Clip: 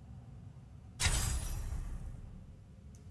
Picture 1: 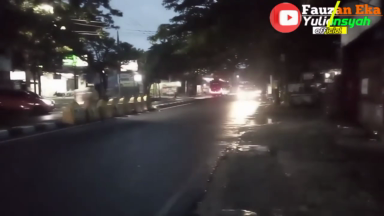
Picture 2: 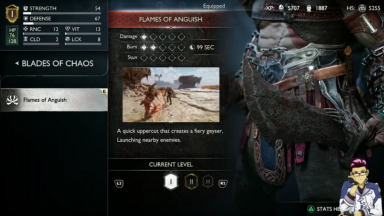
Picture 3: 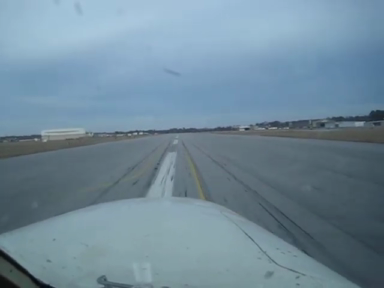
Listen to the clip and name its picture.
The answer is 2